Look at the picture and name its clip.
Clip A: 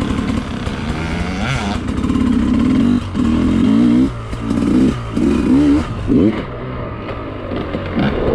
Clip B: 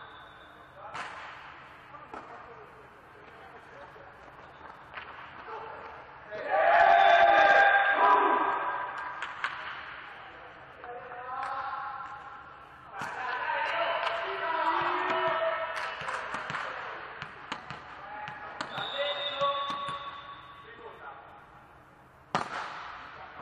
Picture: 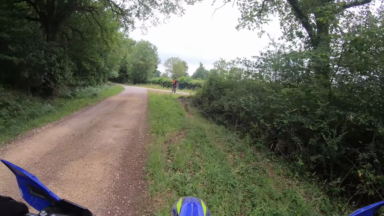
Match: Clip A